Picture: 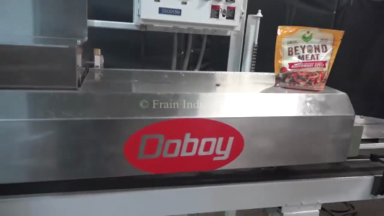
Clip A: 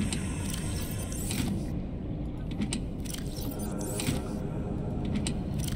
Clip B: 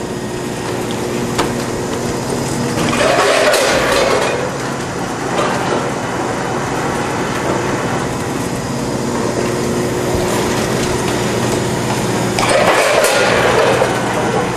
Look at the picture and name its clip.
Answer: B